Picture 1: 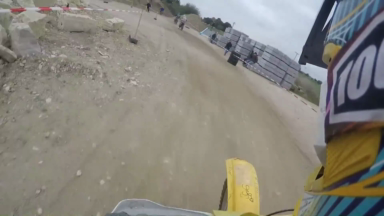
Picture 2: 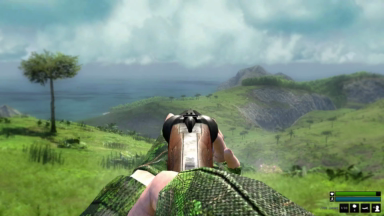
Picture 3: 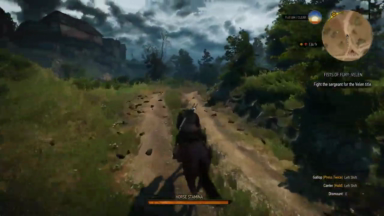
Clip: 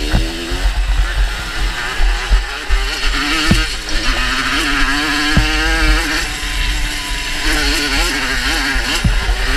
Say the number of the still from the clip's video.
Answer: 1